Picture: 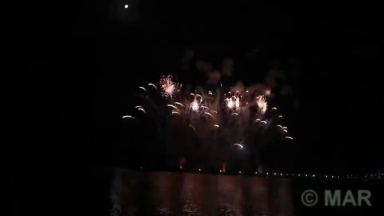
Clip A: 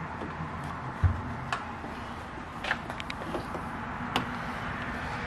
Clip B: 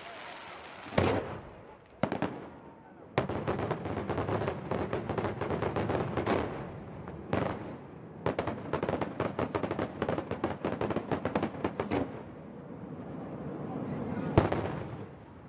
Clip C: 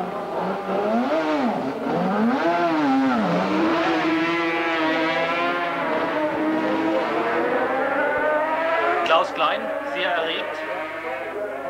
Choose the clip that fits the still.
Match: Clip B